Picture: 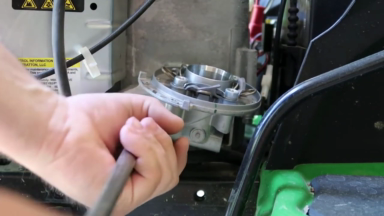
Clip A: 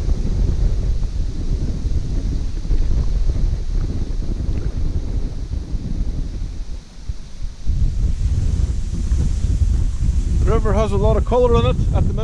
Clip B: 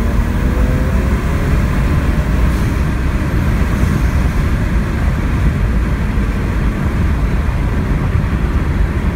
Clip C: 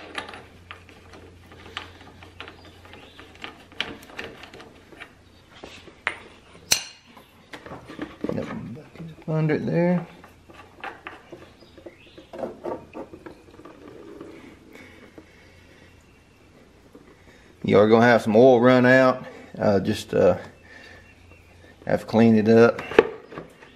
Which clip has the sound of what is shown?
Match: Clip C